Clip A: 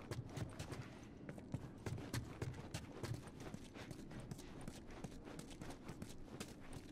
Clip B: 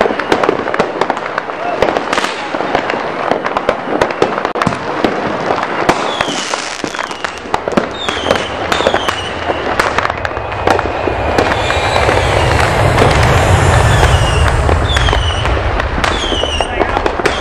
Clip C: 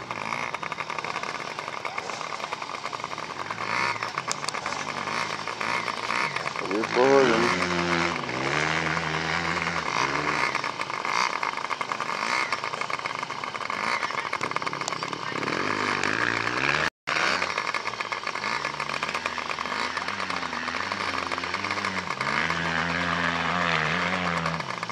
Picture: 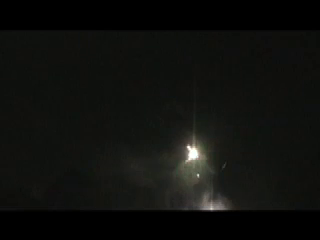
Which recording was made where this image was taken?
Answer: B